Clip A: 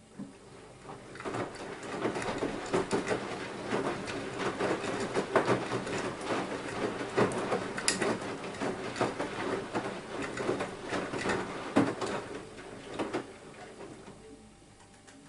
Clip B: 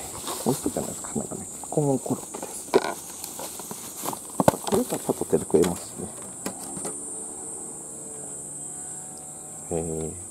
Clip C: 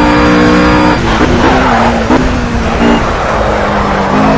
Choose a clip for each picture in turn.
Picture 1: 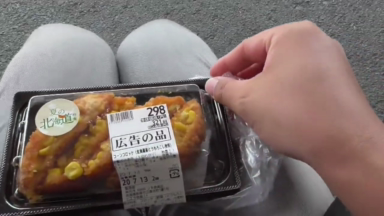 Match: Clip B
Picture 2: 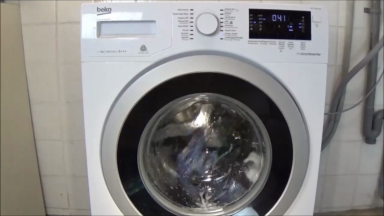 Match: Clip A